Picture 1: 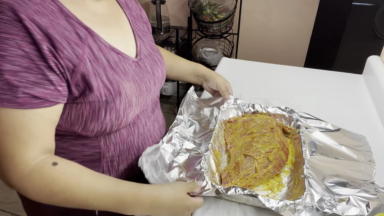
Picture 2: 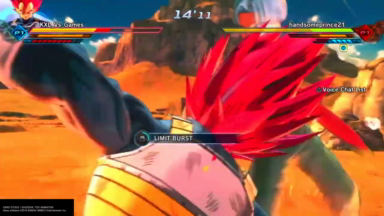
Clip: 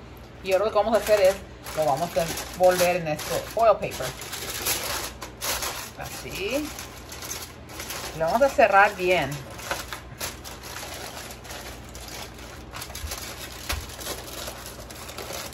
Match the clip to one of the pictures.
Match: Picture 1